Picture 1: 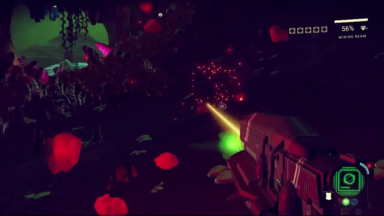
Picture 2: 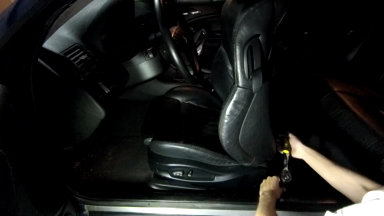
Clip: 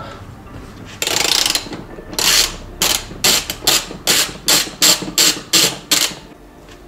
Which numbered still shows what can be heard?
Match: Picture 2